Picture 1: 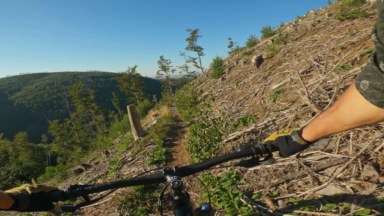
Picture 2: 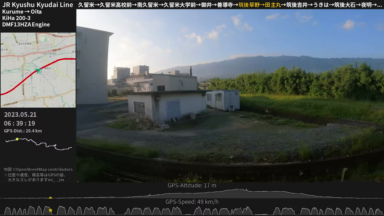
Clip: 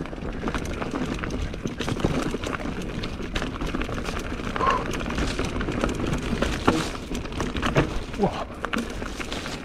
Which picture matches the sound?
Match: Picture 1